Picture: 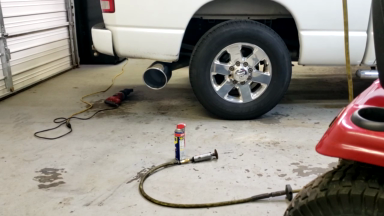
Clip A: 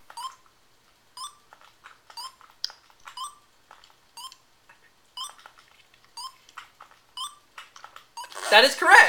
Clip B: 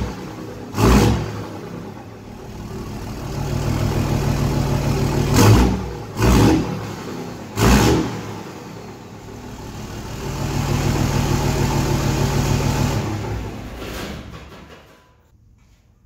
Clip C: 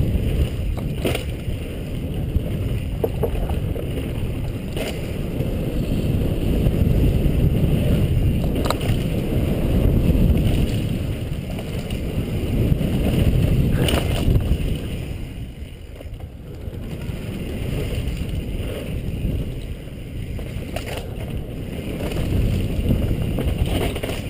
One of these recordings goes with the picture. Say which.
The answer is B